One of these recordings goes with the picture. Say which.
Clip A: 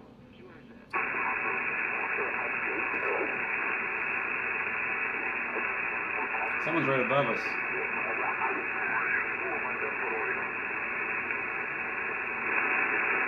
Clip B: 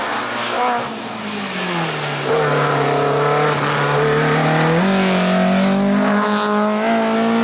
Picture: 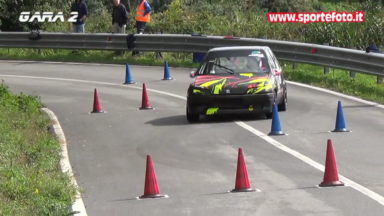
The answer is B